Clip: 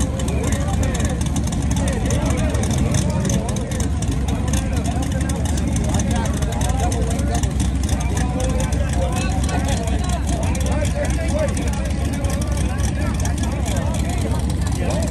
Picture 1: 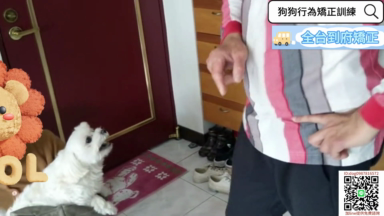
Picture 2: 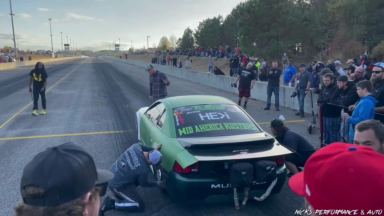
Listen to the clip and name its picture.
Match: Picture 2